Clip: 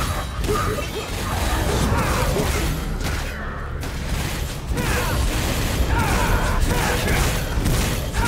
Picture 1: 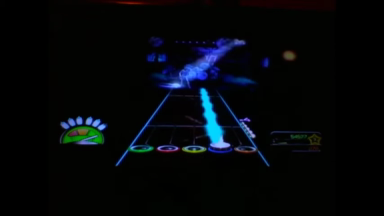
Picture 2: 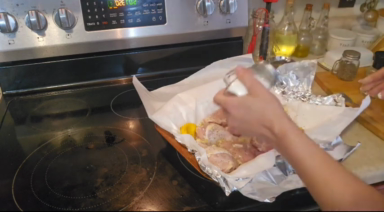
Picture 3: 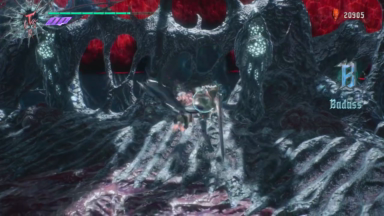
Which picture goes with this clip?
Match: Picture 3